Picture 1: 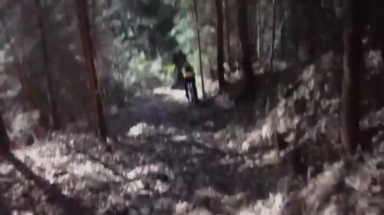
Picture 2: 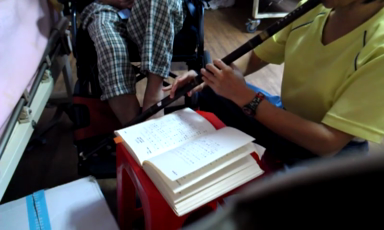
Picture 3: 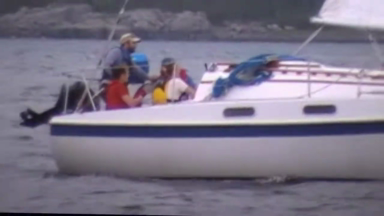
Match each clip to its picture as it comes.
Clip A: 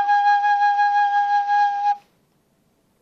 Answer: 2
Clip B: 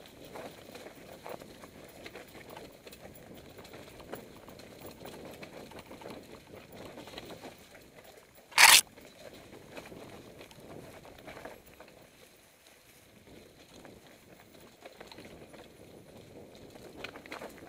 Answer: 1